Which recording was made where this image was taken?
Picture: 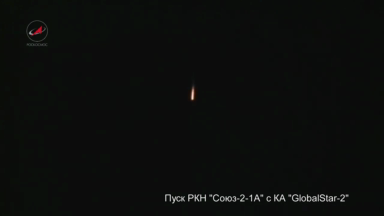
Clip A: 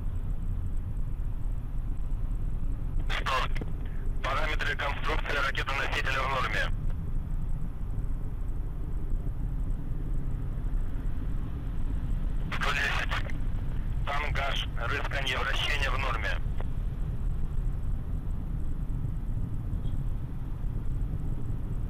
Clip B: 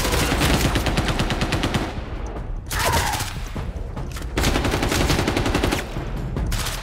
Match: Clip A